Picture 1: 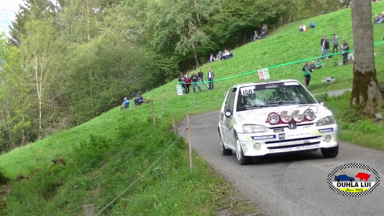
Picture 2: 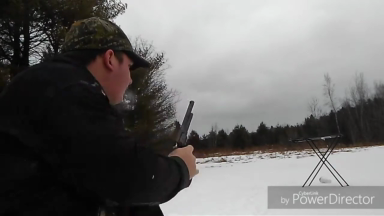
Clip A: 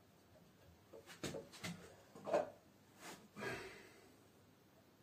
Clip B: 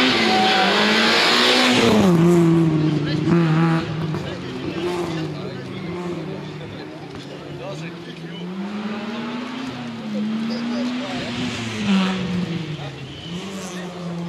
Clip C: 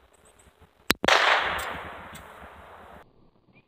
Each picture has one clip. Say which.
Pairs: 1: B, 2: C